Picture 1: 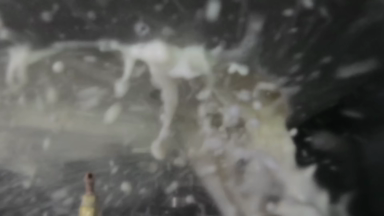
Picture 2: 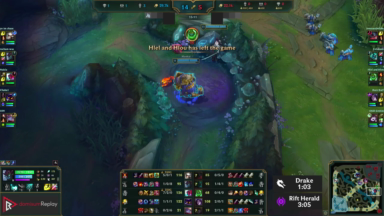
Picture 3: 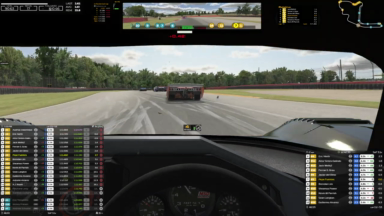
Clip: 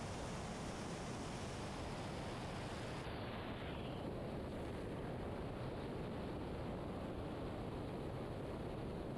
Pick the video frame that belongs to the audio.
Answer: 1